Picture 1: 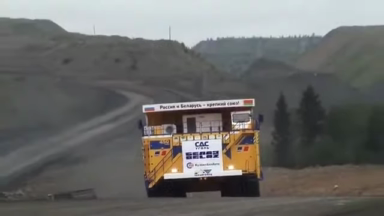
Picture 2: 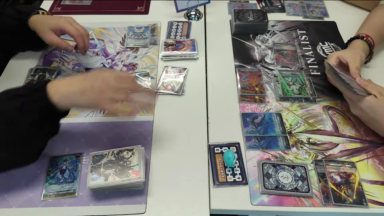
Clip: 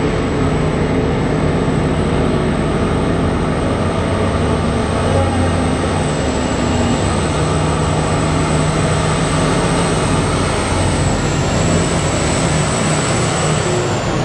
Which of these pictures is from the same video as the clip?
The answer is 1